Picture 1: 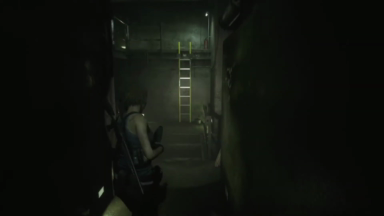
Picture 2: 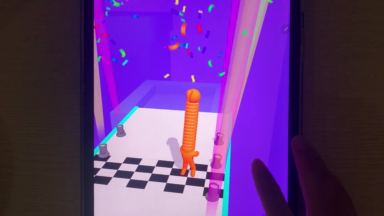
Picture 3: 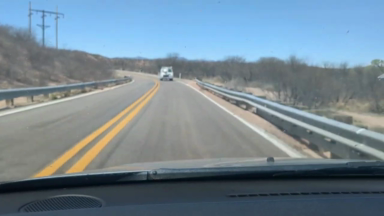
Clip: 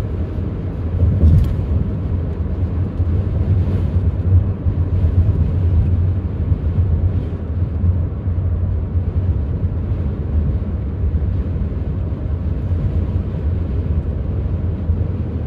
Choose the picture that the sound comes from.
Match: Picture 3